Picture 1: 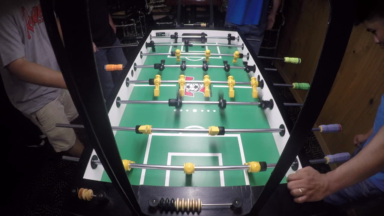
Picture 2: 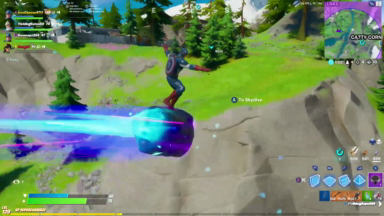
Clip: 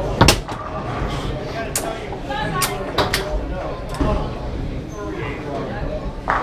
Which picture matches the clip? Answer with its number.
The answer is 1